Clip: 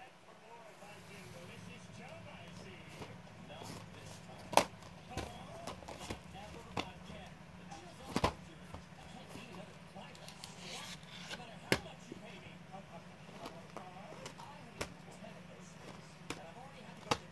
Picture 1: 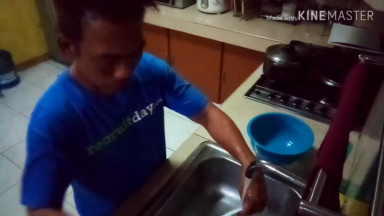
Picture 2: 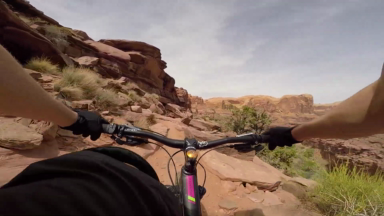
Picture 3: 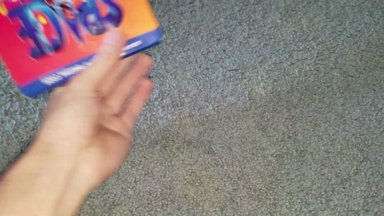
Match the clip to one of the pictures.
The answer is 3